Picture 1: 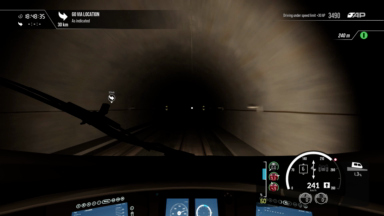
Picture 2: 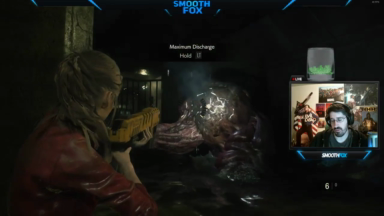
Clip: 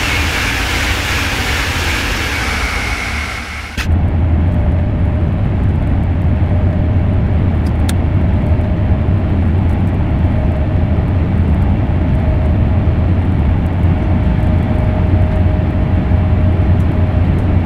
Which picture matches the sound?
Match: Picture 1